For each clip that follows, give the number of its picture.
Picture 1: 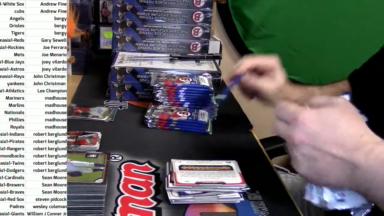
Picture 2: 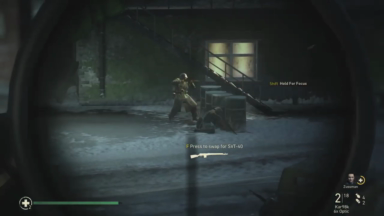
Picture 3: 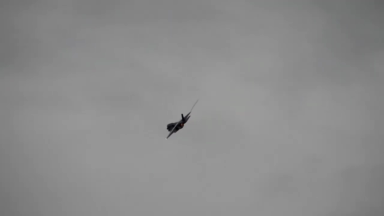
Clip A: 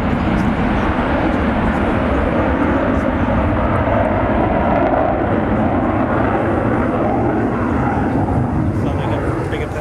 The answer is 3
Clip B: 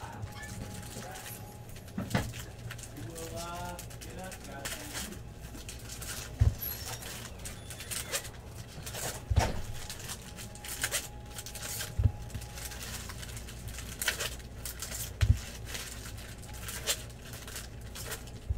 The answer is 1